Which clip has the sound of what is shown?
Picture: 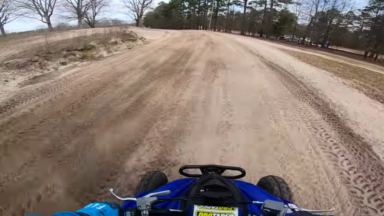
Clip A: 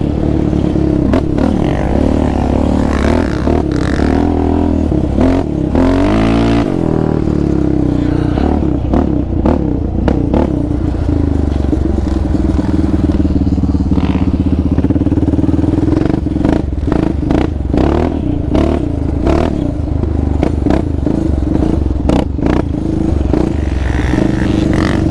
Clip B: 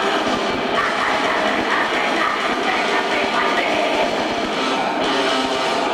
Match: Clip A